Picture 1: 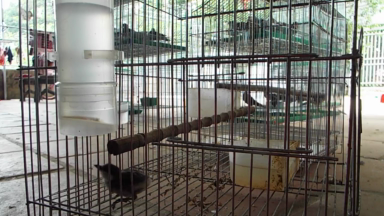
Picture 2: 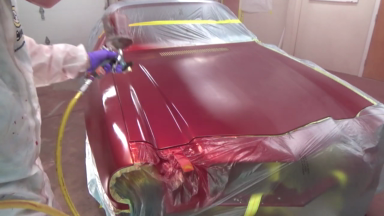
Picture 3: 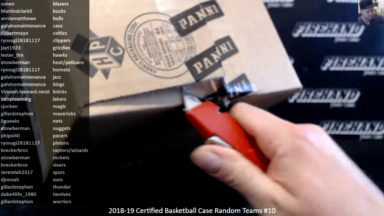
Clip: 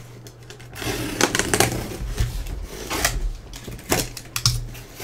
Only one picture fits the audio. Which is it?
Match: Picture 3